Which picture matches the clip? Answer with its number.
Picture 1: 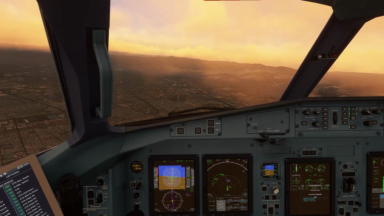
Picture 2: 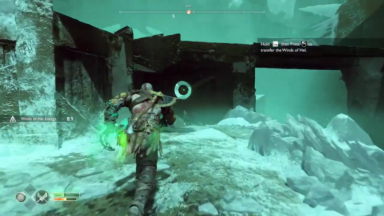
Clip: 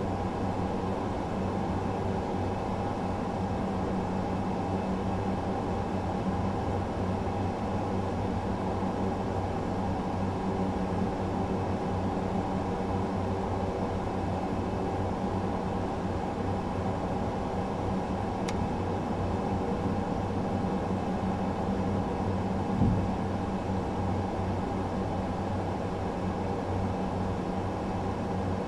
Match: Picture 1